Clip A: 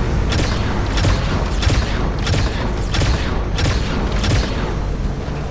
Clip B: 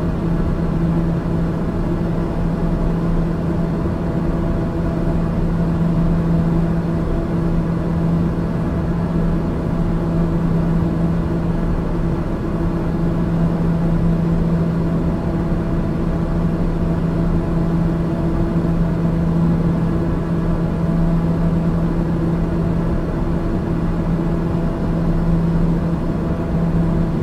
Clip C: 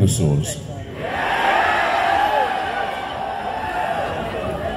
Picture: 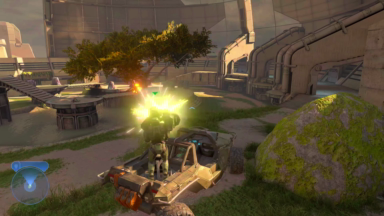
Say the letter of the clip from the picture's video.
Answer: A